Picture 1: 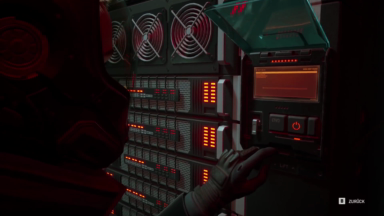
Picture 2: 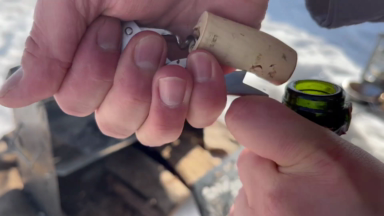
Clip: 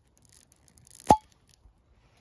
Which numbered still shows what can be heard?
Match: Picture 2